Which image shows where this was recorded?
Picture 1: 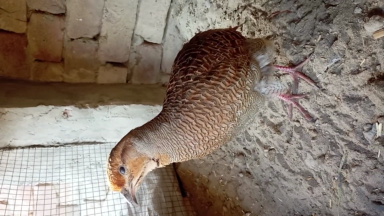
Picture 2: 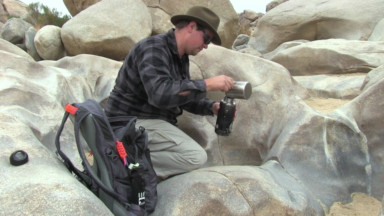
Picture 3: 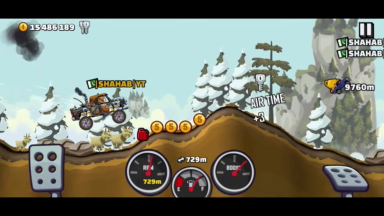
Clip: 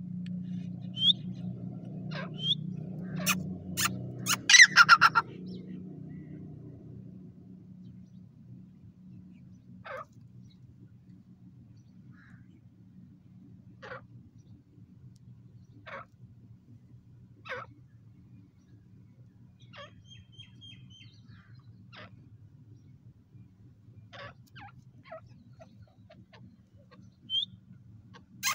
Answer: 1